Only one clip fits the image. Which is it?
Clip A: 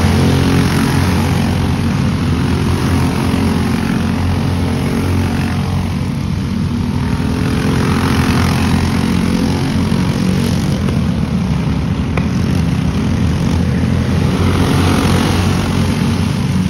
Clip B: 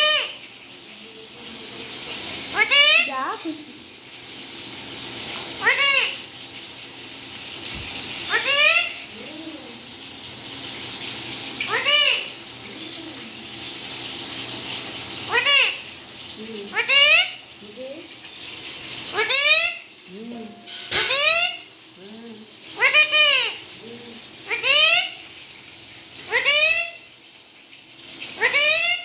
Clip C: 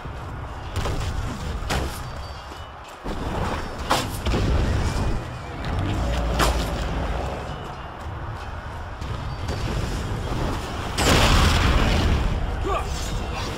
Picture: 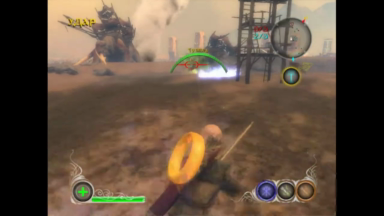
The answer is C